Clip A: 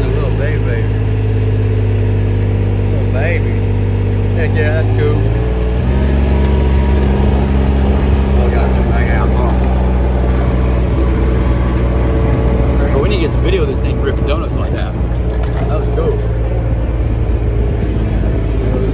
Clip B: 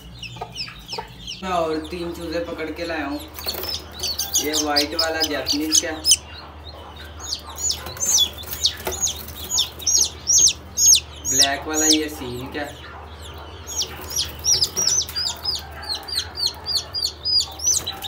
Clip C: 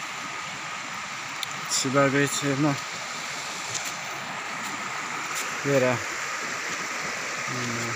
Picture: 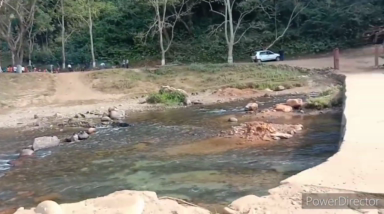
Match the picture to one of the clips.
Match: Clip C